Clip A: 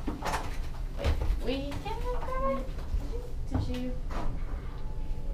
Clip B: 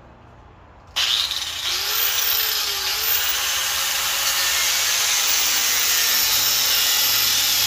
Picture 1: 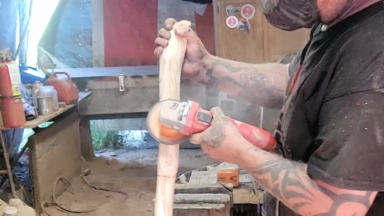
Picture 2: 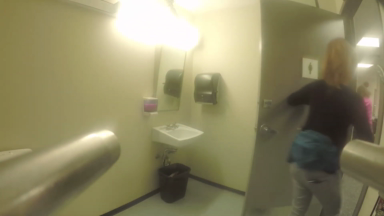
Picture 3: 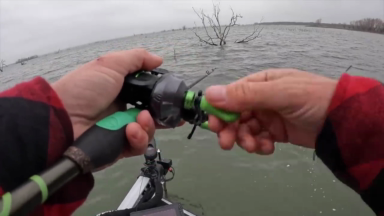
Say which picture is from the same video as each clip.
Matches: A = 2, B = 1